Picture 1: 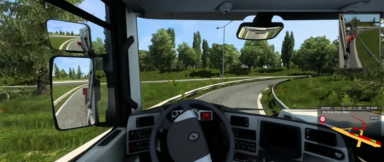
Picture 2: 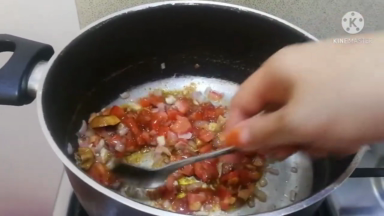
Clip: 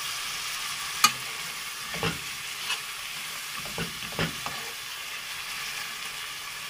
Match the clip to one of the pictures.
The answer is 2